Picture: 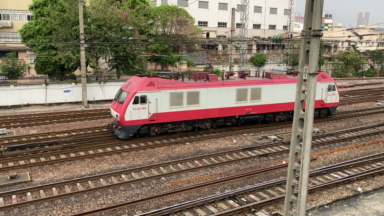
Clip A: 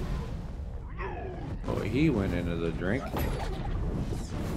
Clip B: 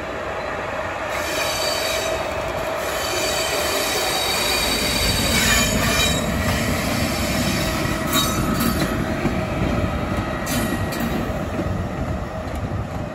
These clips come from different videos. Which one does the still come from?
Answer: B